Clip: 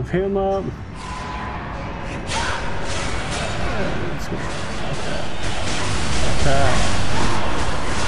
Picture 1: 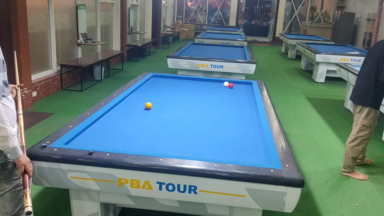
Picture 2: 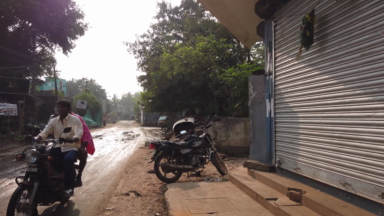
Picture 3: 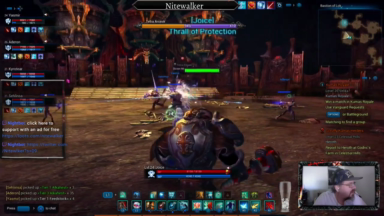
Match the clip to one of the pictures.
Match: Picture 3